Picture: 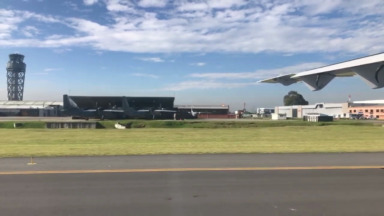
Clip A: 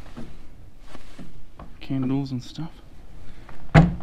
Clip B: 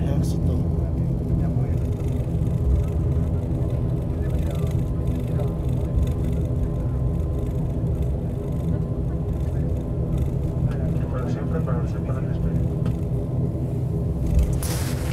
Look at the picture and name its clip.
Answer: B